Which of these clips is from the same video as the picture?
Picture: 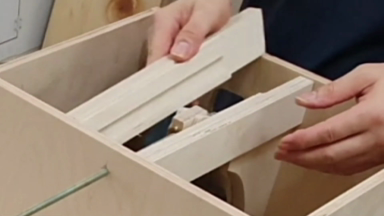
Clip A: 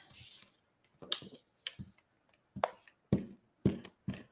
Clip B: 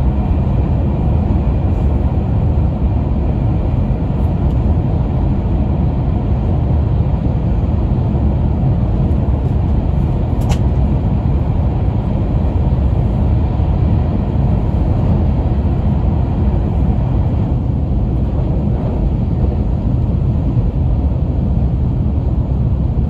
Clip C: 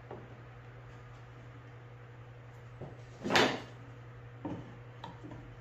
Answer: C